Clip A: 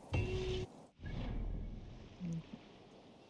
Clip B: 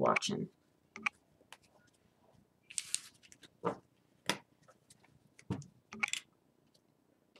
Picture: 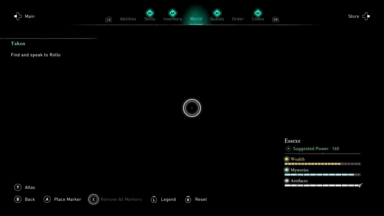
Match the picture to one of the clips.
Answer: A